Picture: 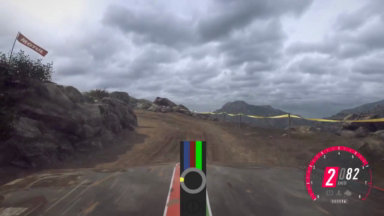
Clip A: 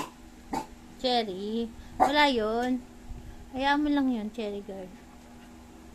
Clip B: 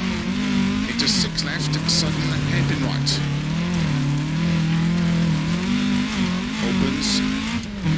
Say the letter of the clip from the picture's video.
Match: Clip B